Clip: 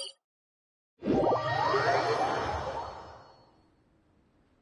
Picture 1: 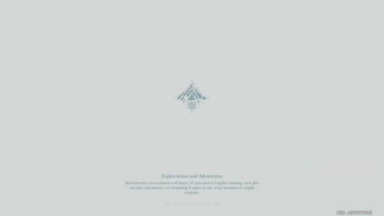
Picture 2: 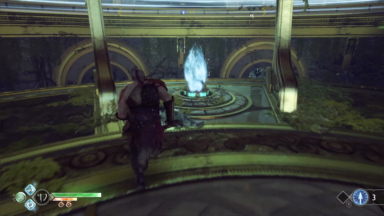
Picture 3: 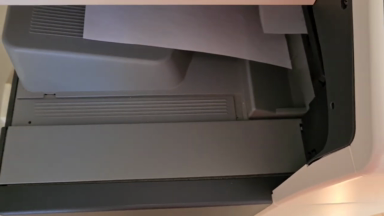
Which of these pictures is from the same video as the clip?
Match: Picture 1